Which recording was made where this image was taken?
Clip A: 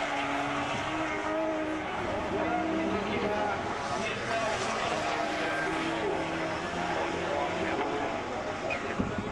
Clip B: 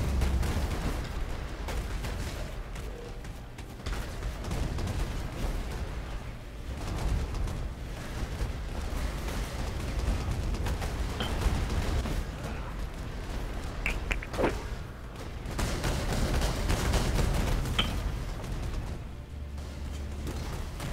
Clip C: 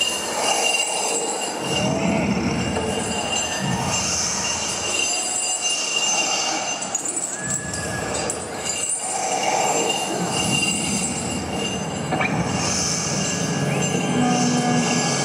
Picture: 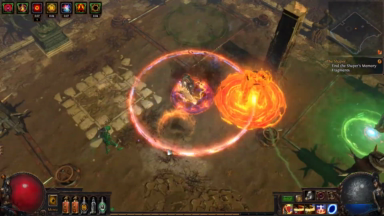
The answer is B